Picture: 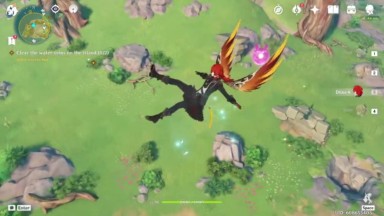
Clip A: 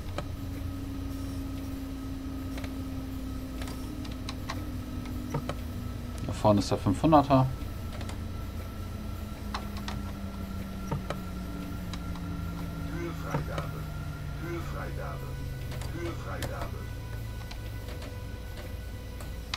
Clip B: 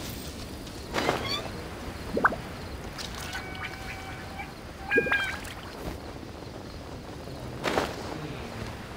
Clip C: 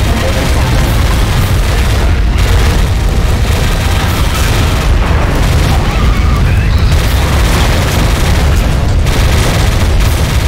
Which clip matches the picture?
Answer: B